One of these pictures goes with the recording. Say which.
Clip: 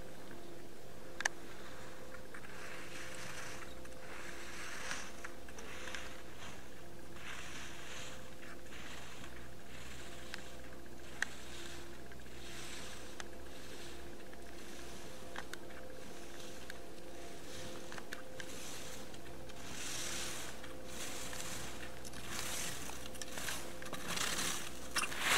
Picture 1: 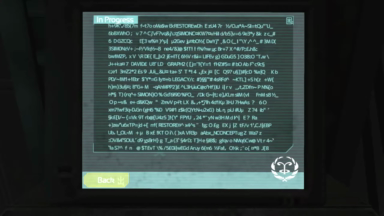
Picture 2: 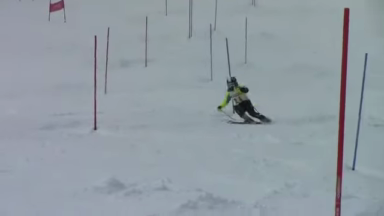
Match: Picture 2